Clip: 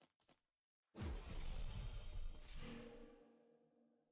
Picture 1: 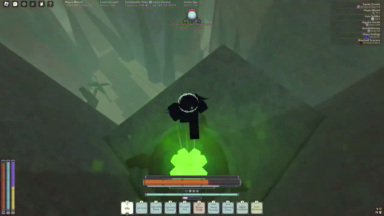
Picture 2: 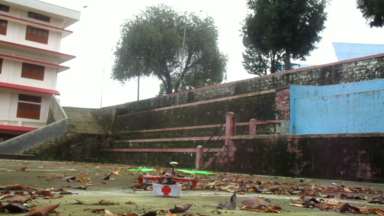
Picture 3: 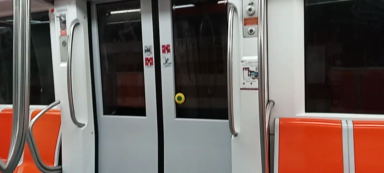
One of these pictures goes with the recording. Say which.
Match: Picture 1